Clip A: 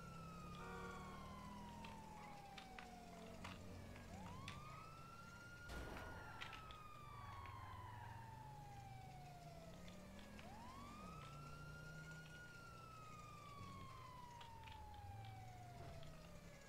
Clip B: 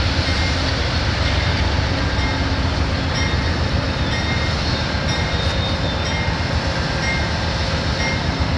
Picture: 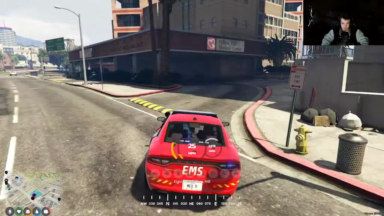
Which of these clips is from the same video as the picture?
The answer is A